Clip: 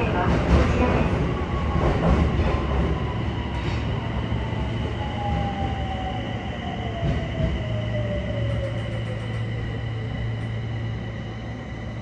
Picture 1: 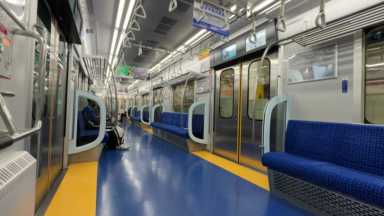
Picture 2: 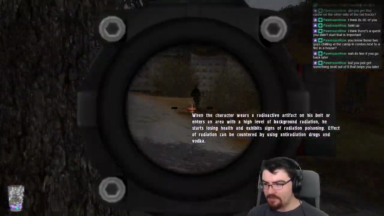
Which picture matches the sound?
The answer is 1